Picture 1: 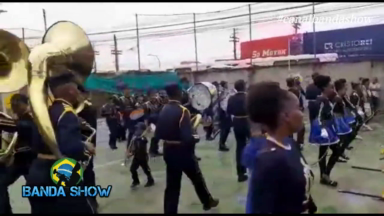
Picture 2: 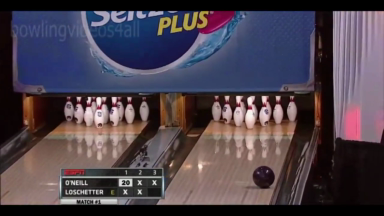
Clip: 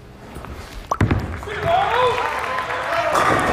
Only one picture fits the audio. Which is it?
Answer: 2